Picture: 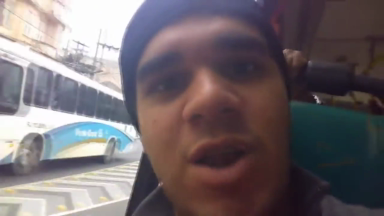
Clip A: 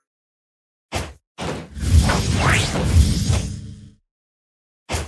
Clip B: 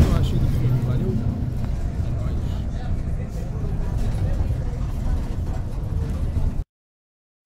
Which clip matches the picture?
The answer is B